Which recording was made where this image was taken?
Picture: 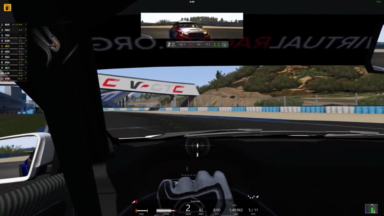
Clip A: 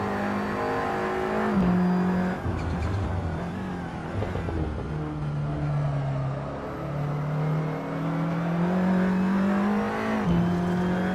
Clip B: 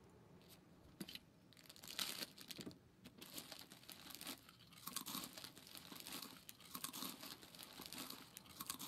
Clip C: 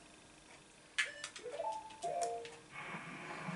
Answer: A